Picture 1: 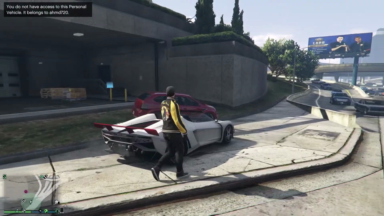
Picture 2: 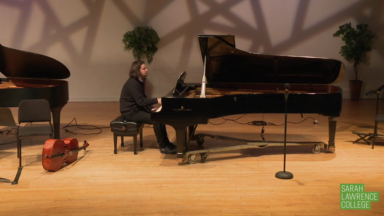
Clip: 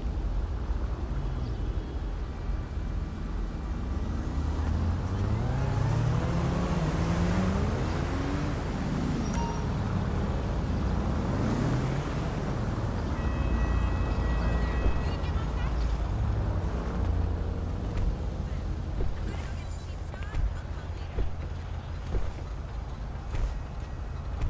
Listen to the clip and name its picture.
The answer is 1